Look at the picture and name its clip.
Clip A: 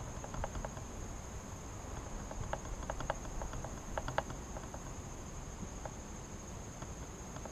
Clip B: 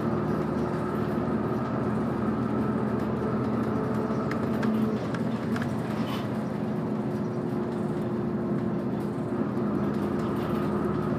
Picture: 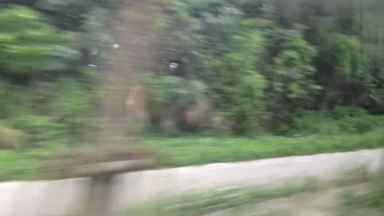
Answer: B